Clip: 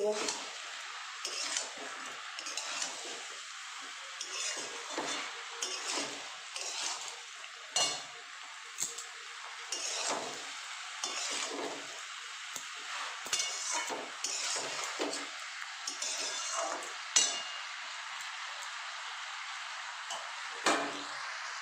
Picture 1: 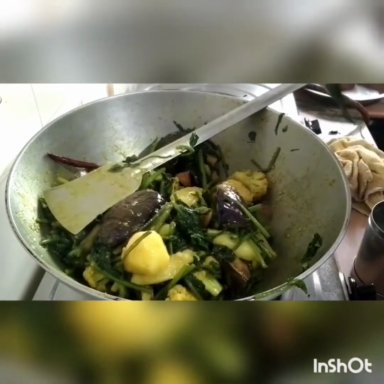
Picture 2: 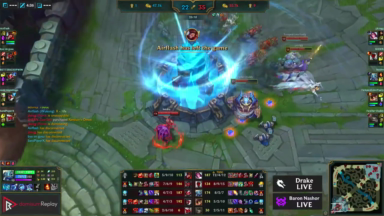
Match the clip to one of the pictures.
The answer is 1